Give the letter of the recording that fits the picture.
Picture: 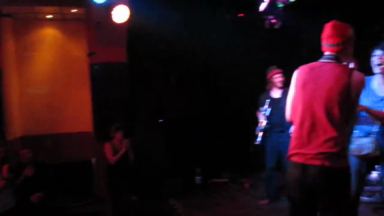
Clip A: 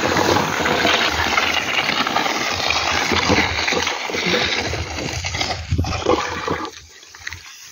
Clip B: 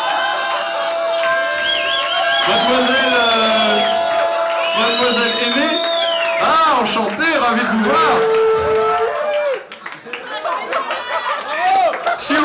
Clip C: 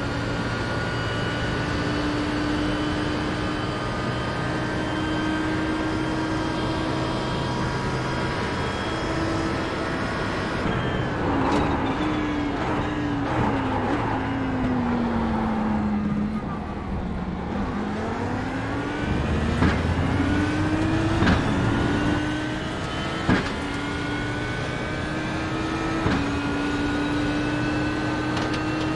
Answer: B